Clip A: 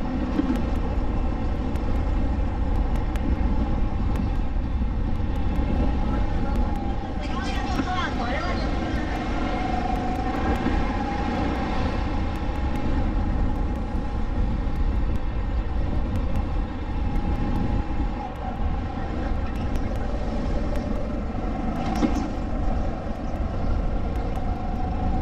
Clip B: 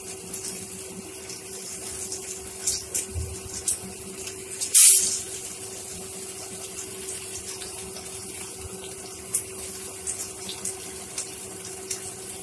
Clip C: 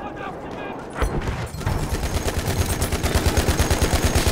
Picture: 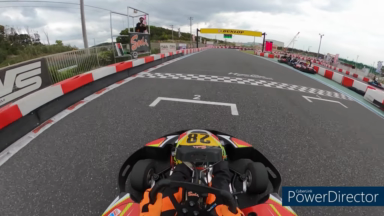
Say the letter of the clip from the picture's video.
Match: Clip A